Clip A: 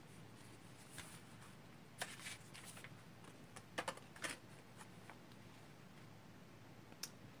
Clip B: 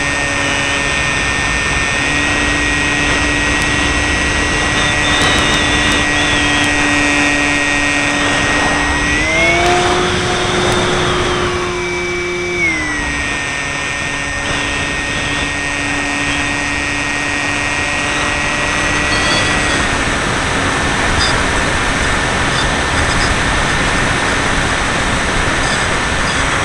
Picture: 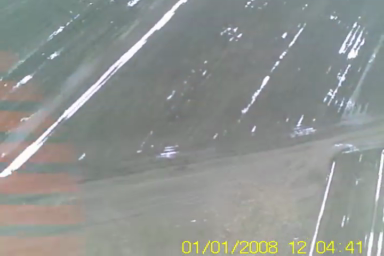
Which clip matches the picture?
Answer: B